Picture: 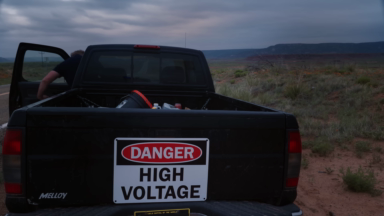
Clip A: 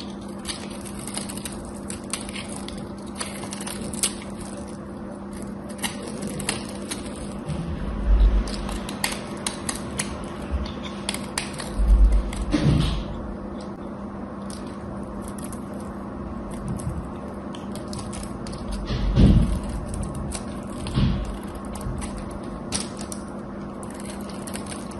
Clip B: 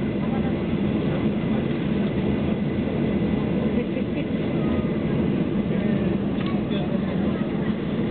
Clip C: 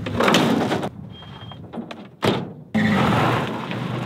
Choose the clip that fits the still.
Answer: C